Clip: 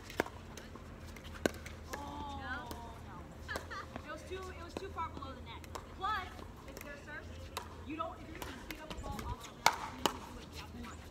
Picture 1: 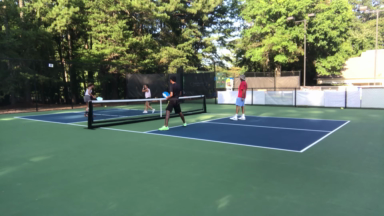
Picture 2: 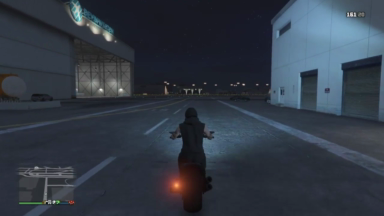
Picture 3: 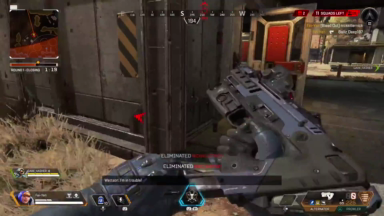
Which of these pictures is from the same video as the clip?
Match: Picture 1